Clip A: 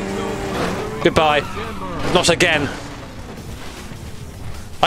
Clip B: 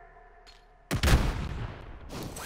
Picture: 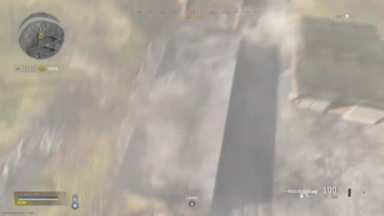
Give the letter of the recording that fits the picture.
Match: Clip B